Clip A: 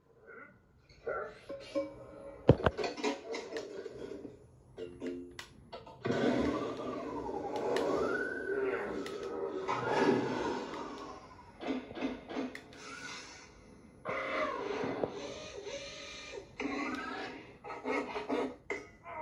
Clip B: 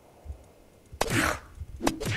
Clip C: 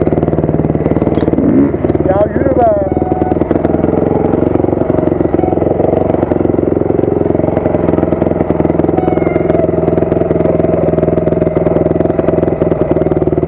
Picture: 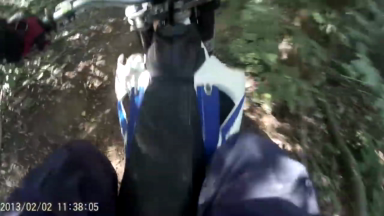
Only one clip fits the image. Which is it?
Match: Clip C